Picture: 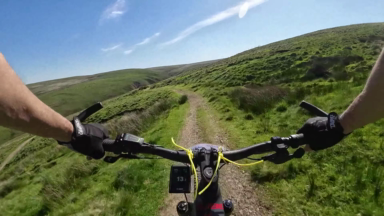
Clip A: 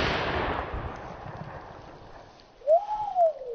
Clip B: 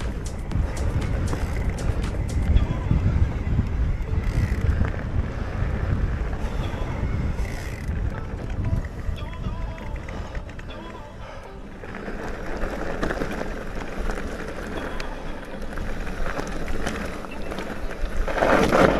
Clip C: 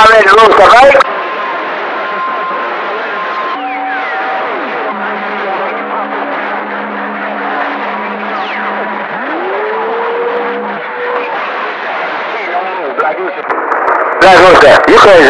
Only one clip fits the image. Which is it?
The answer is B